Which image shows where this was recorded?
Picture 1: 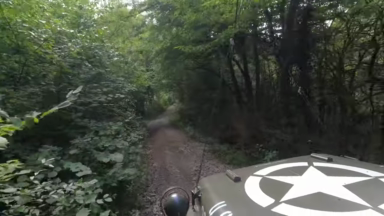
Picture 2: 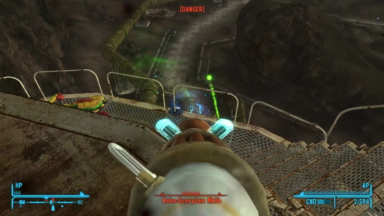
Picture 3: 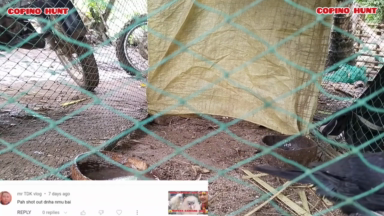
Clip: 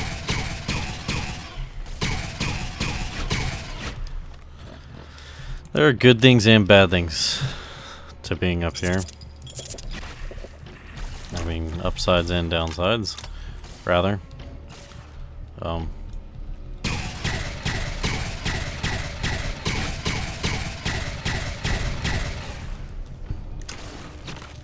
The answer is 2